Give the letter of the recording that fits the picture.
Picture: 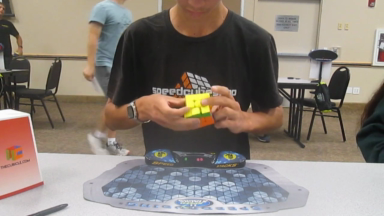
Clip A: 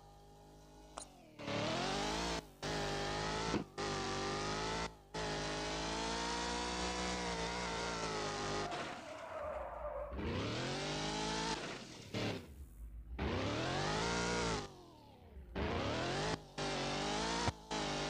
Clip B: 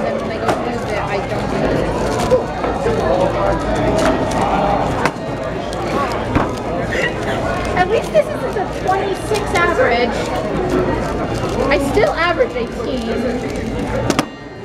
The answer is B